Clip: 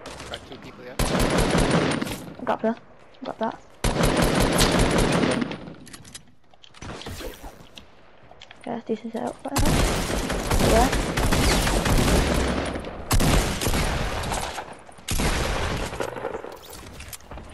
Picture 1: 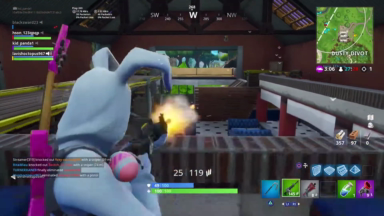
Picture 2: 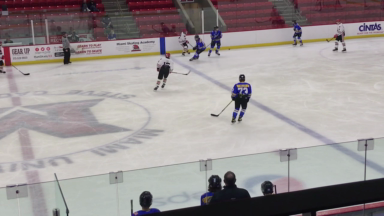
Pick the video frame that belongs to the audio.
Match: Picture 1